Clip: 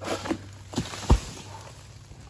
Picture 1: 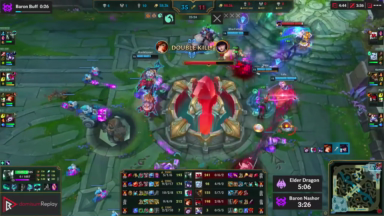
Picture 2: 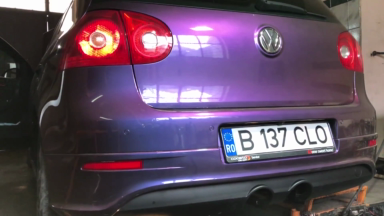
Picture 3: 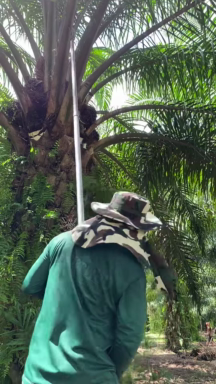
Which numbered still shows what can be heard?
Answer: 3